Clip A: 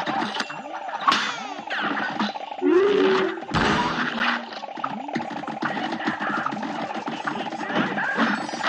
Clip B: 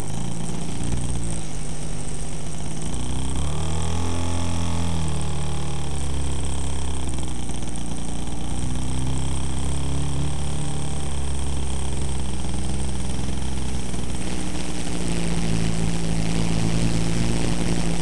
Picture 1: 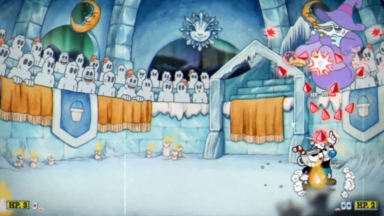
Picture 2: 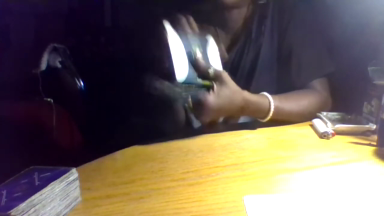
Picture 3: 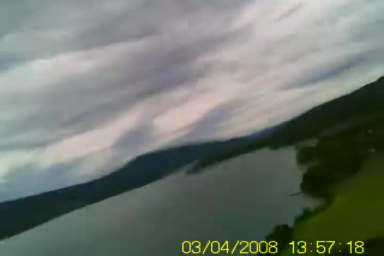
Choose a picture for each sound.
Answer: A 1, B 3